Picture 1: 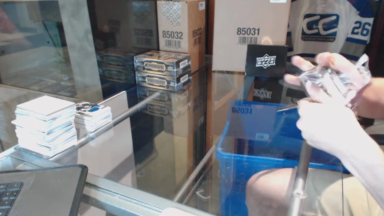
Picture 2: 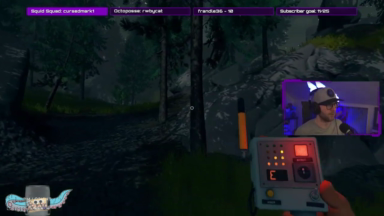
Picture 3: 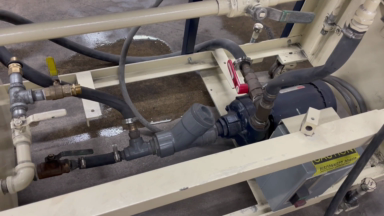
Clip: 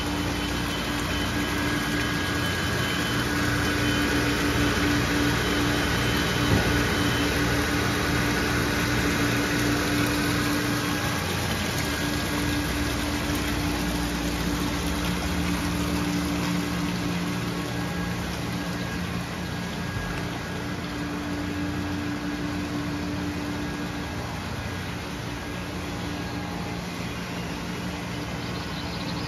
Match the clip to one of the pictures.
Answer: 3